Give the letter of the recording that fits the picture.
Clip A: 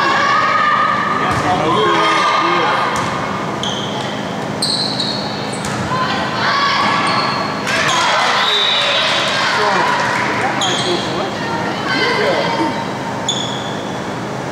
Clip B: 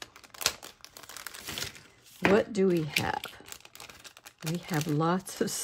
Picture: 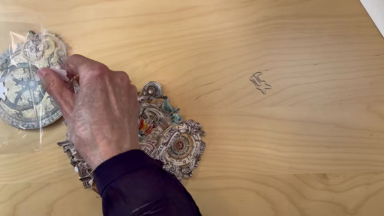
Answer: B